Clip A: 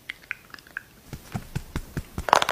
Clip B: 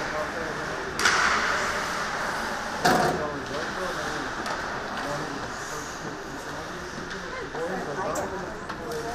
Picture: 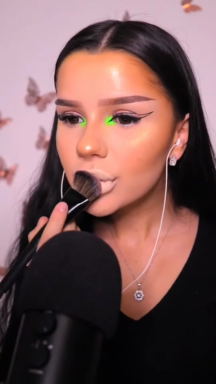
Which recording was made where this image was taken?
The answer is A